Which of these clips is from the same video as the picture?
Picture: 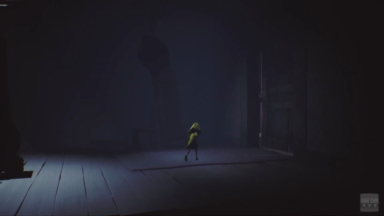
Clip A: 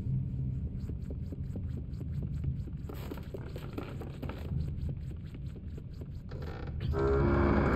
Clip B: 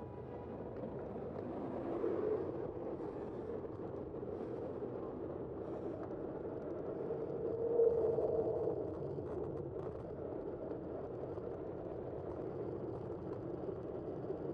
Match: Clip A